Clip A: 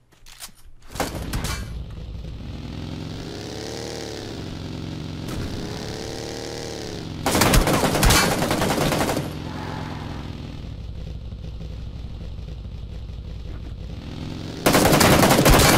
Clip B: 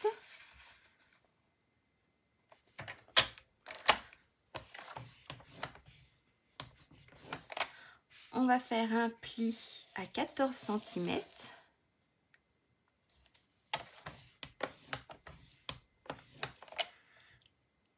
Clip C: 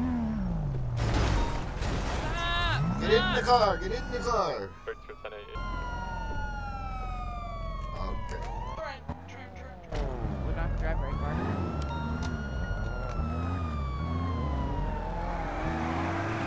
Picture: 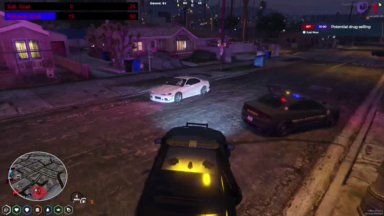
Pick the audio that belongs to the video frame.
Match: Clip C